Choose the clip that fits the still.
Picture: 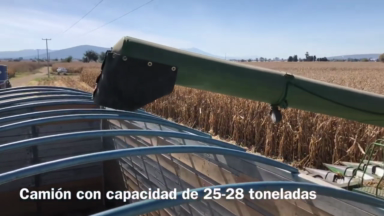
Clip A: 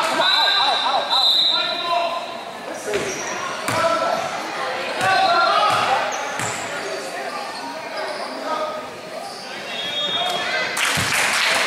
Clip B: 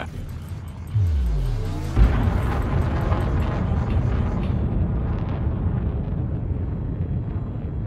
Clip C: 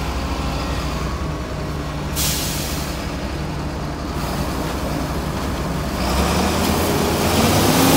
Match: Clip C